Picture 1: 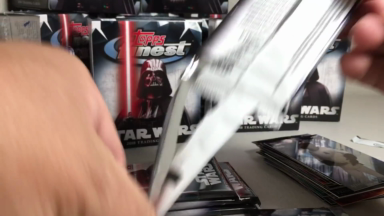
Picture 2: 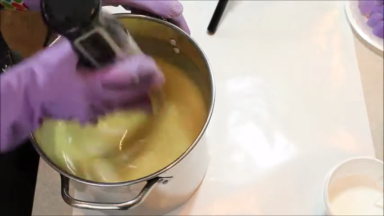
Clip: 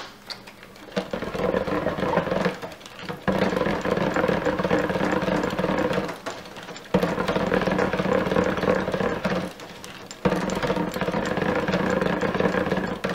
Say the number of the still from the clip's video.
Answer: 2